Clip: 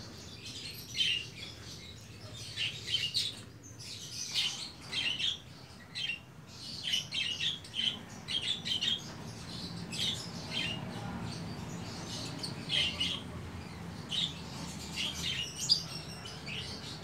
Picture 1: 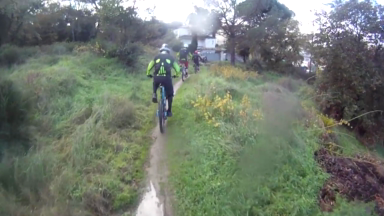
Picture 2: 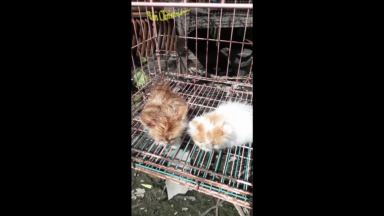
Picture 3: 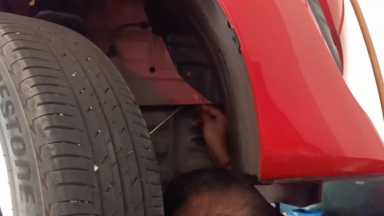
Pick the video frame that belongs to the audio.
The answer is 2